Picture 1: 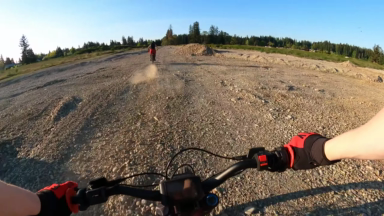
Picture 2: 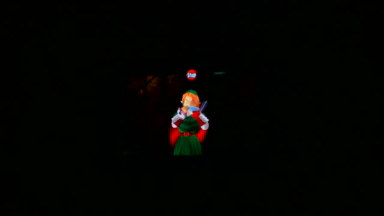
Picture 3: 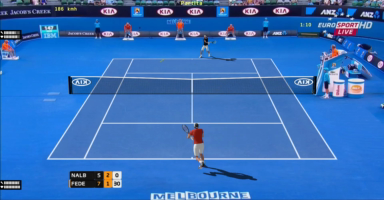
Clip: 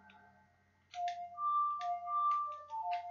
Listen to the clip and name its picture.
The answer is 2